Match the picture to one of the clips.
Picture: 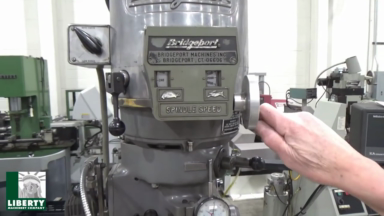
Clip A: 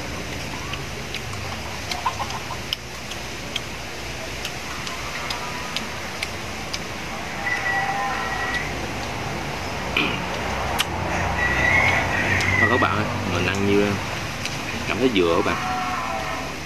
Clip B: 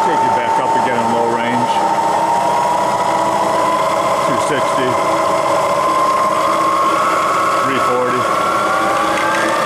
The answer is B